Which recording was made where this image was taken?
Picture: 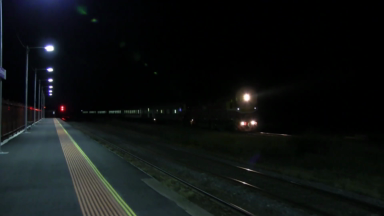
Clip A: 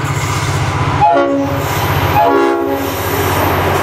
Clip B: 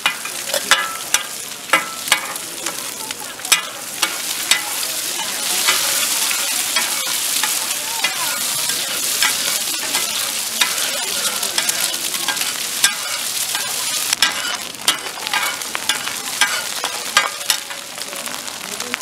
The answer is A